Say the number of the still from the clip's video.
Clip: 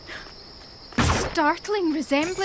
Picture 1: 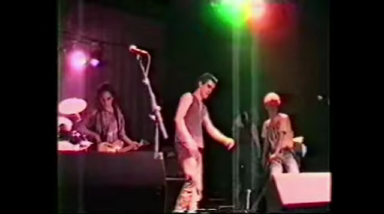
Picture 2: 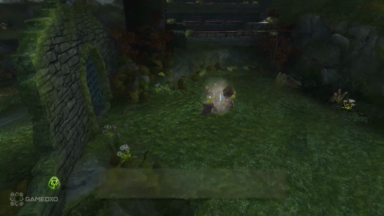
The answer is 2